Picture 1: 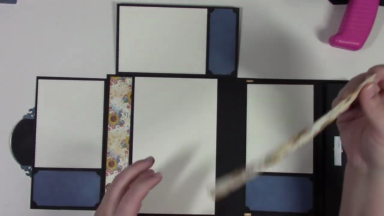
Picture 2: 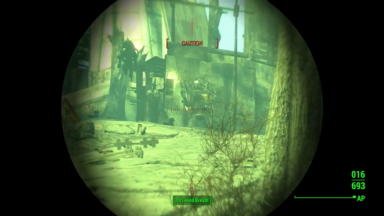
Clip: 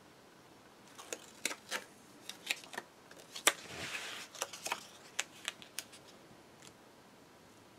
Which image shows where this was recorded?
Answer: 1